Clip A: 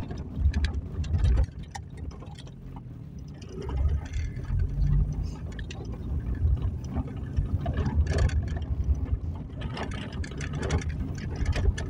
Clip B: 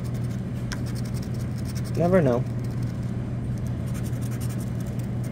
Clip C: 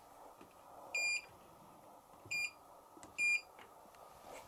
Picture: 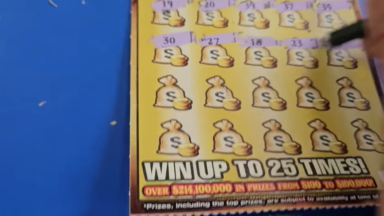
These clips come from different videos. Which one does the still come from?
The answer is B